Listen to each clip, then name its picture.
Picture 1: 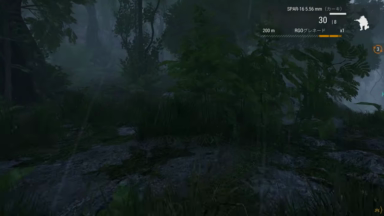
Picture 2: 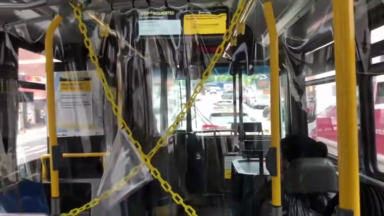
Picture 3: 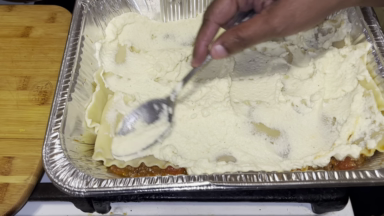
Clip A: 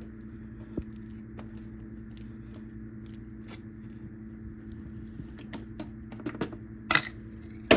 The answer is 3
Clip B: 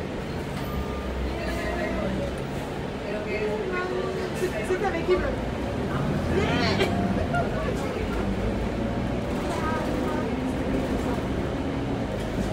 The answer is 2